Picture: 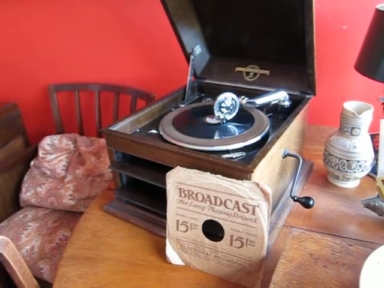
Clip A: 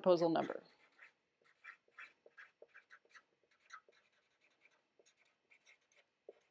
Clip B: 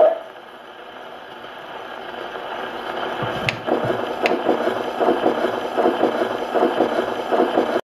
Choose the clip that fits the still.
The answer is B